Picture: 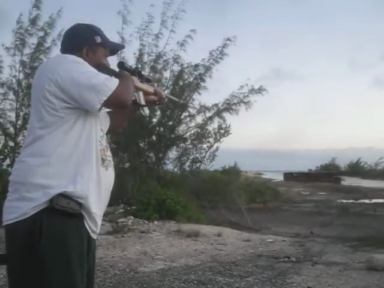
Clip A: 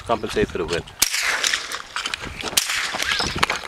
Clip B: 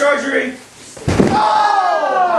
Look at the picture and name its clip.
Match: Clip A